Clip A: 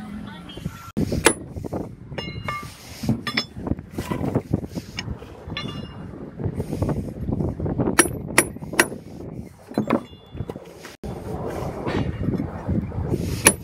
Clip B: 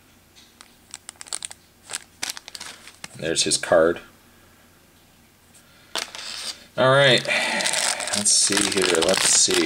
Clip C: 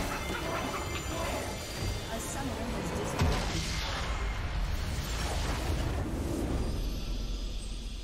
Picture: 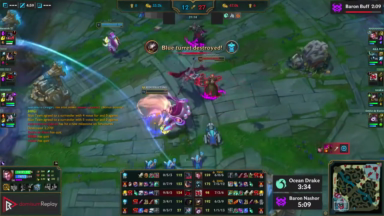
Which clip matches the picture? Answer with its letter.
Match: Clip C